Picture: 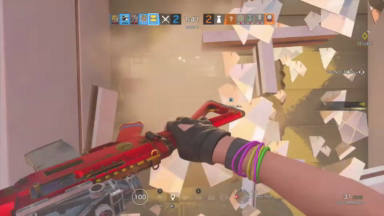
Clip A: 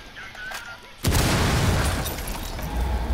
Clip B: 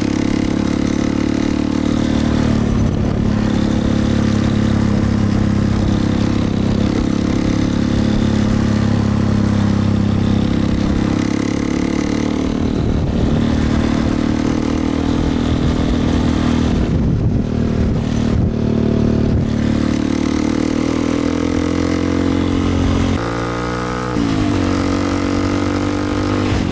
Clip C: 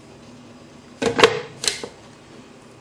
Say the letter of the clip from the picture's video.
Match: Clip A